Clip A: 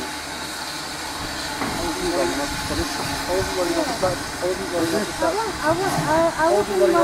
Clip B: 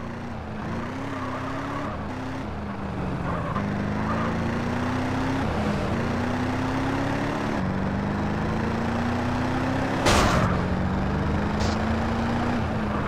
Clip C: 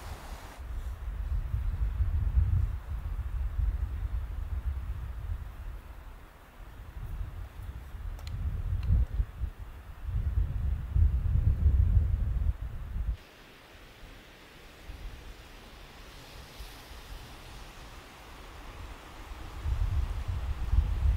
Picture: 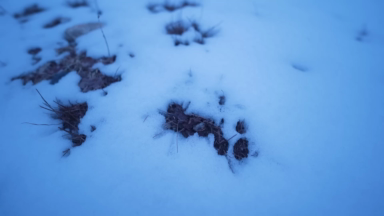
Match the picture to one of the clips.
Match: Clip C